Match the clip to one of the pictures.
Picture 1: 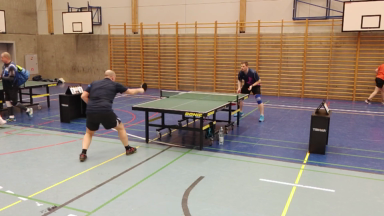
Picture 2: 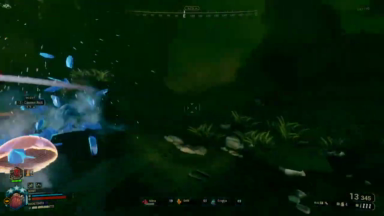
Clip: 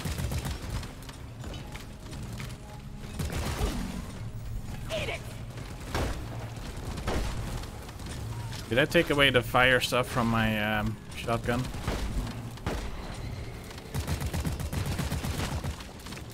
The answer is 2